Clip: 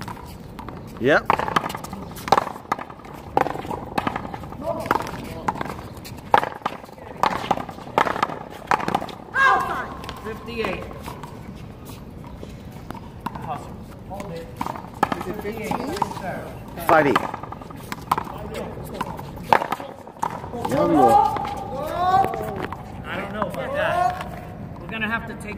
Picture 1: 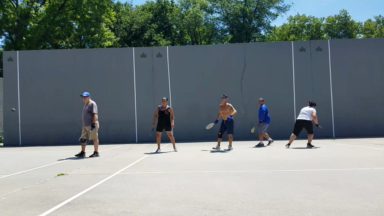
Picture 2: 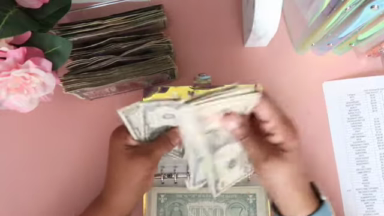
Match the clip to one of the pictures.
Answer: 1